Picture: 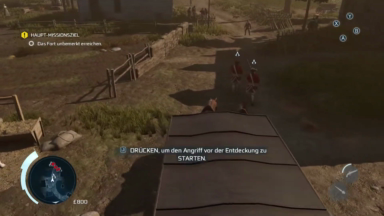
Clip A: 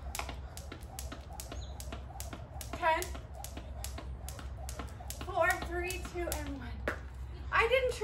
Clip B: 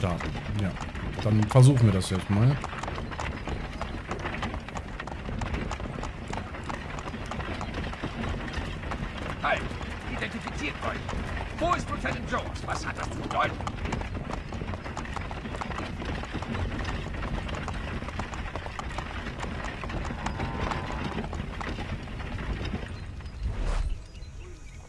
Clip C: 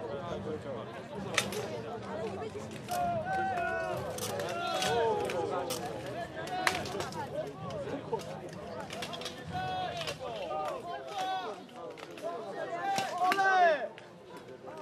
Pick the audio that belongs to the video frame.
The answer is B